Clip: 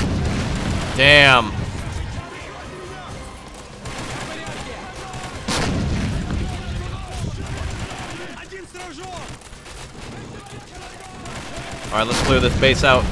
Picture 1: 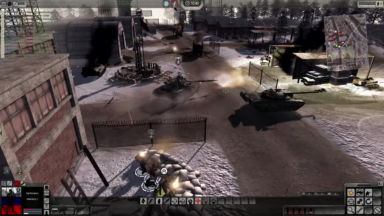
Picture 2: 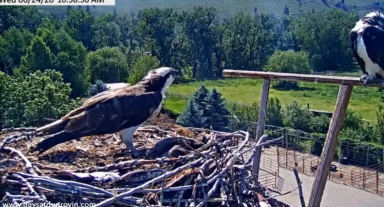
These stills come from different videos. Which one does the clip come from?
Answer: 1